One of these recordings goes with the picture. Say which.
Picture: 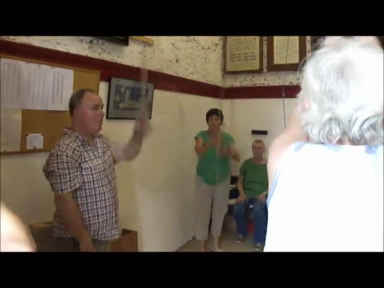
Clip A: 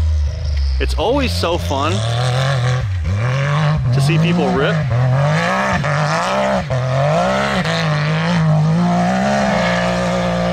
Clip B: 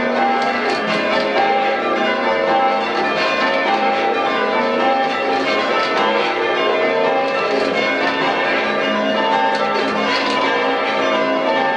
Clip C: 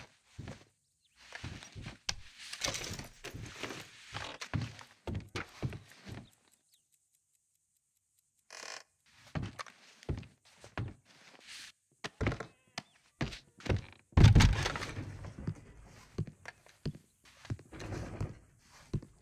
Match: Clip B